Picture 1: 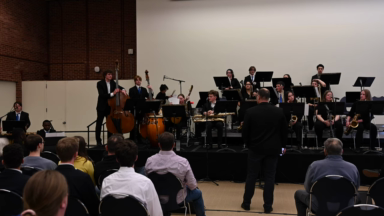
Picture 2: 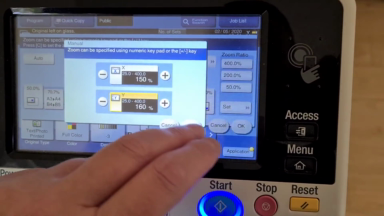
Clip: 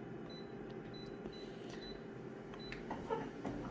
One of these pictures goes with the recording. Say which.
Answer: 2